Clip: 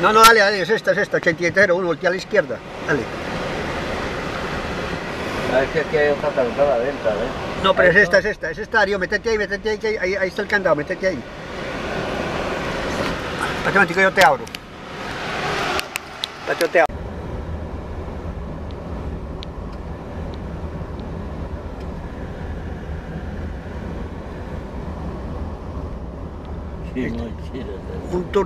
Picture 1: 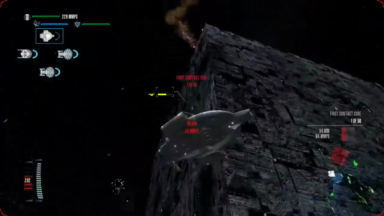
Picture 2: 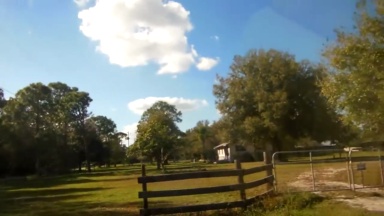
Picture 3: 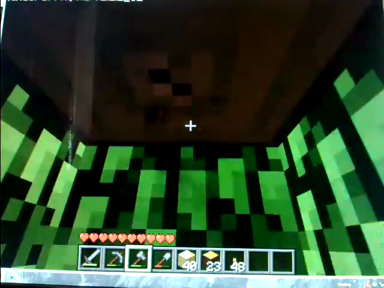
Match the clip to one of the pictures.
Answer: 2